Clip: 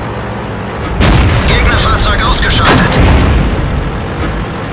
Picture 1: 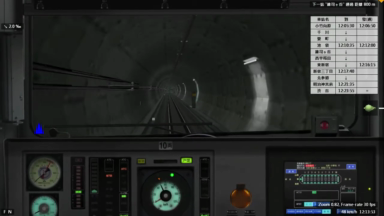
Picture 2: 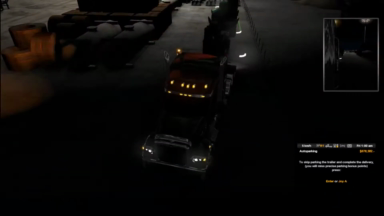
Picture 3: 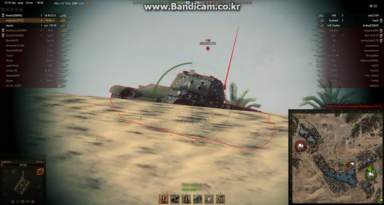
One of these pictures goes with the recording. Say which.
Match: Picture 3